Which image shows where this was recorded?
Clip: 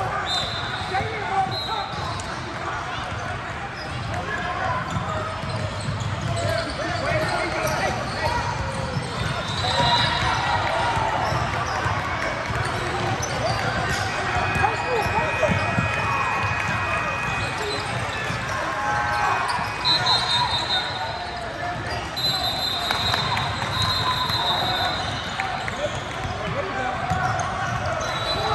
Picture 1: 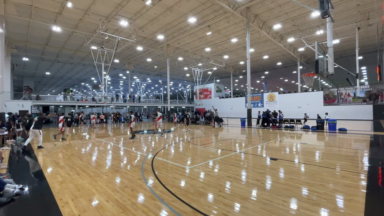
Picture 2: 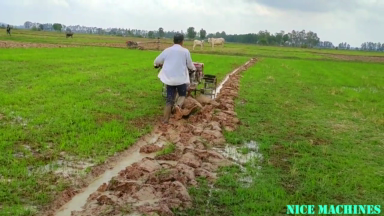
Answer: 1